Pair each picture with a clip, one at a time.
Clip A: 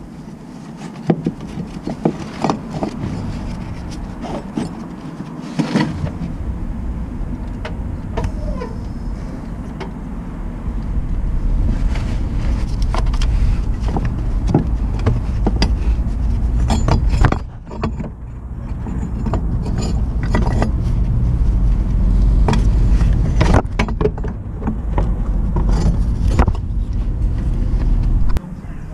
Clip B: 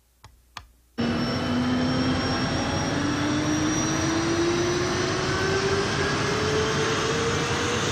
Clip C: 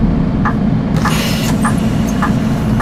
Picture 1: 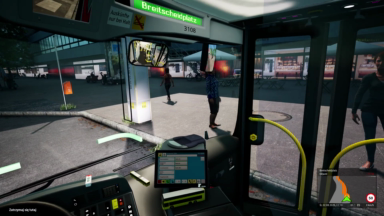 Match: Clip C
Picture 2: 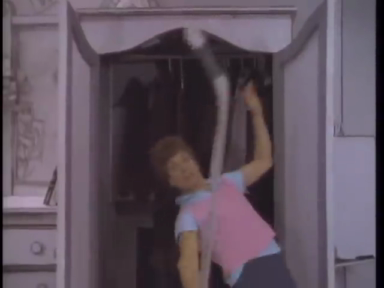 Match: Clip B